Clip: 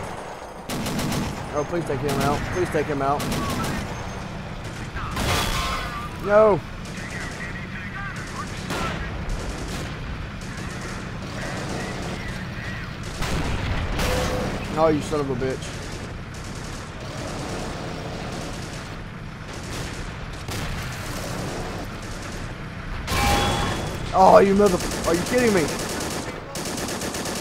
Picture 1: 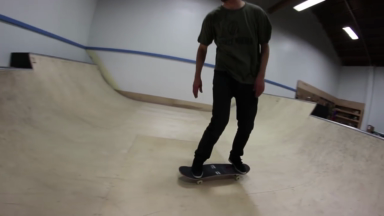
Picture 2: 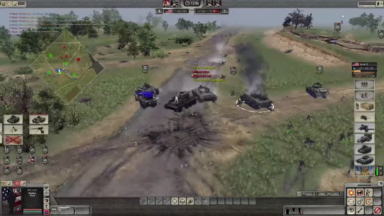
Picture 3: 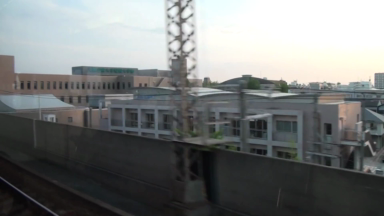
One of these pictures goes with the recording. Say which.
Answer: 2